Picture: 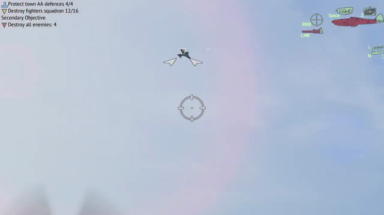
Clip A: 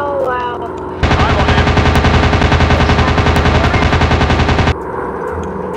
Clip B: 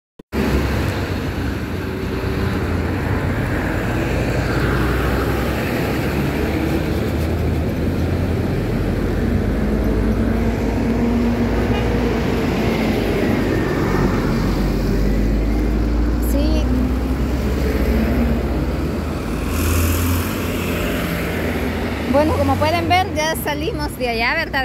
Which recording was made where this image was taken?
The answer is A